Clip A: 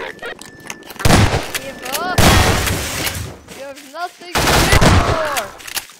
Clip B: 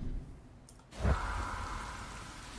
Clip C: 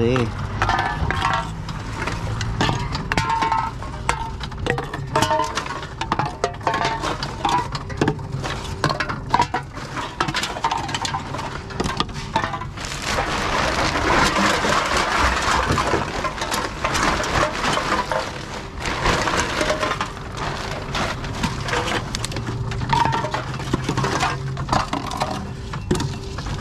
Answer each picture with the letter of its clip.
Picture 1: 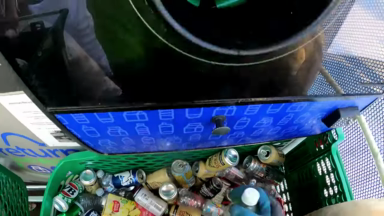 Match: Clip C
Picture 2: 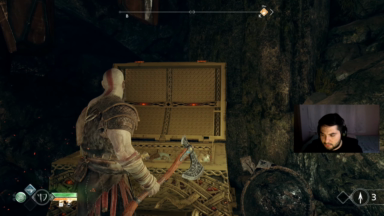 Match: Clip B